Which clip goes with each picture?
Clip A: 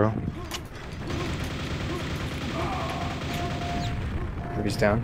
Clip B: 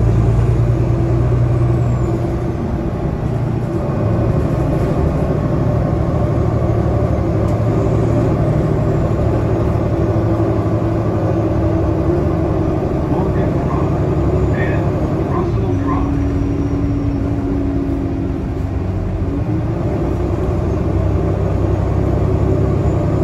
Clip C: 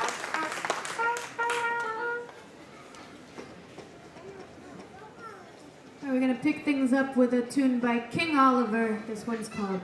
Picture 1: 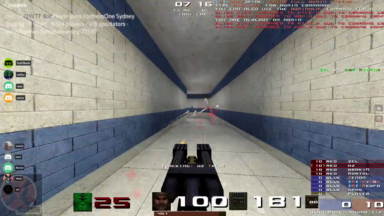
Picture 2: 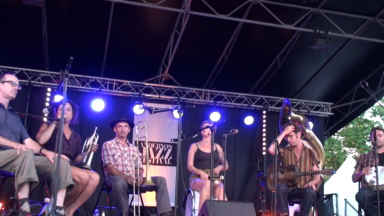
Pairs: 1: A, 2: C